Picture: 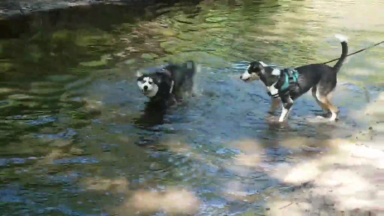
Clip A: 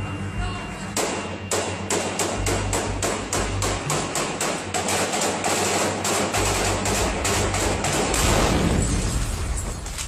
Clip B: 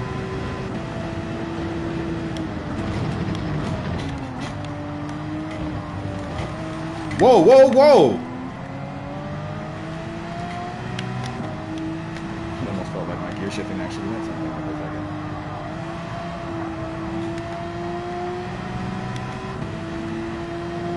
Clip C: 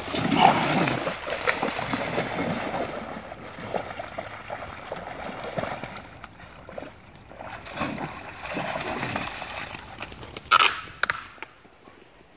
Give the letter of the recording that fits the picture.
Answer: C